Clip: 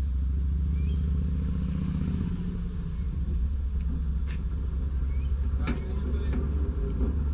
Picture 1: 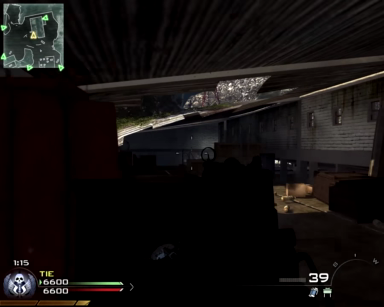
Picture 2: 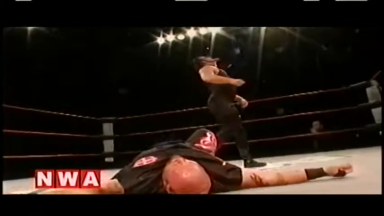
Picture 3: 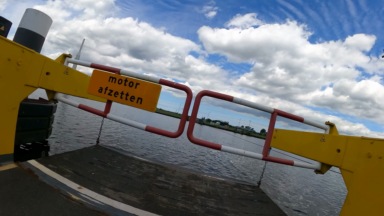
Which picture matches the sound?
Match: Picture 3